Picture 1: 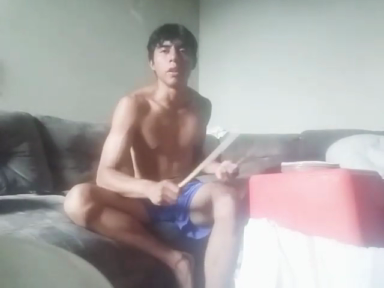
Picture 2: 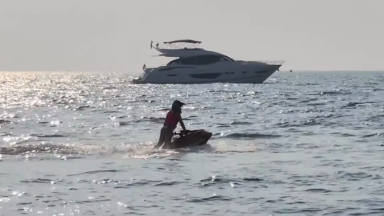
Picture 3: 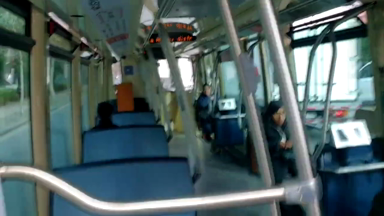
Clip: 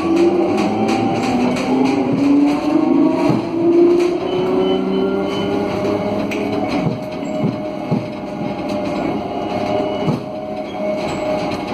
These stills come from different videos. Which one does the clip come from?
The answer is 3